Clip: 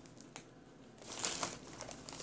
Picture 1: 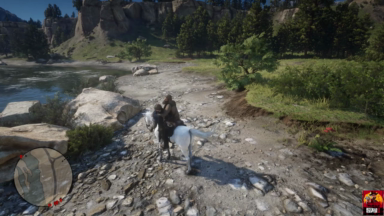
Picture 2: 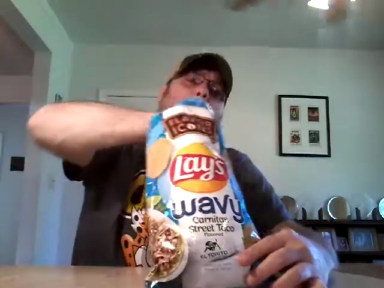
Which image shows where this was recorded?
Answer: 2